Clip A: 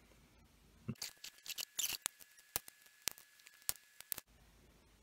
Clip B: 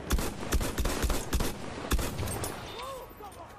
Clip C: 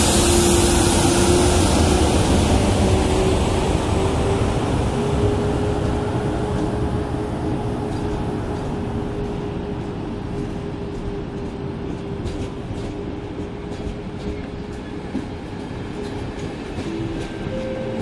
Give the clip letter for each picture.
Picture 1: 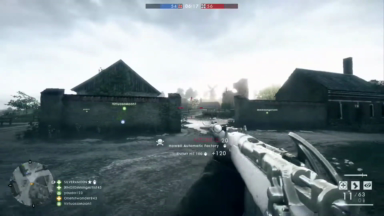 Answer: B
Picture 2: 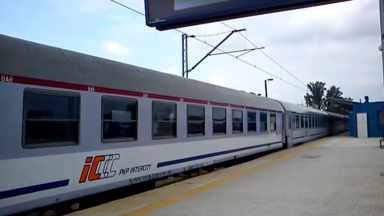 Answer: C